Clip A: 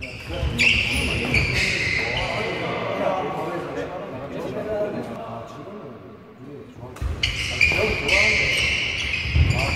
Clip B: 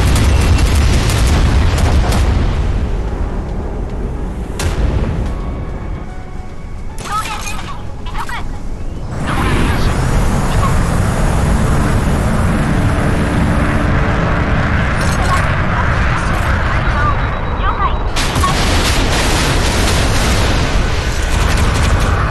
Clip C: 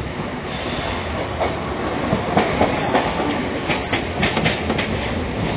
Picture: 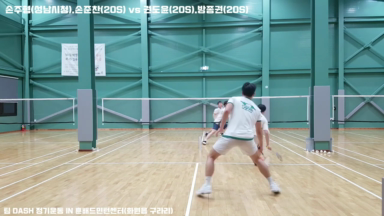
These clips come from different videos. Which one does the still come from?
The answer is A